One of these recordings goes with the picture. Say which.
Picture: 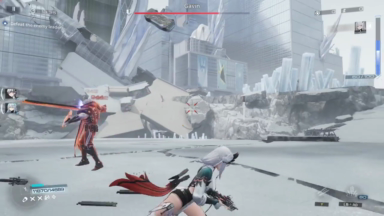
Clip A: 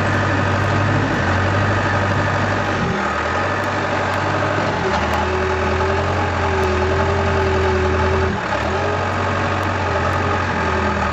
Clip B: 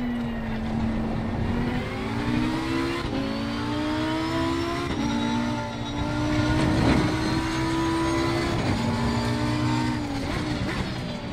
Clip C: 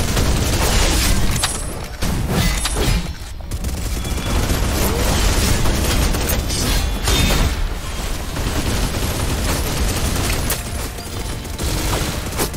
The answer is C